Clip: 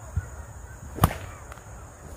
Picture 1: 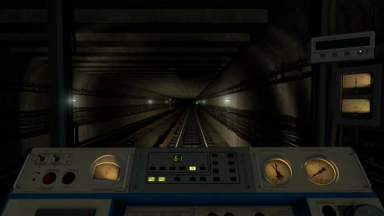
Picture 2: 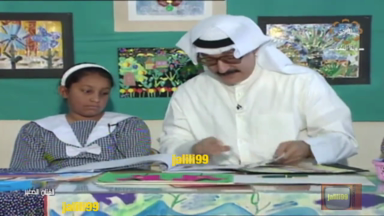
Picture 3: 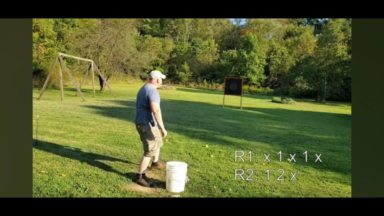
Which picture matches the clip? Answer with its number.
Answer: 3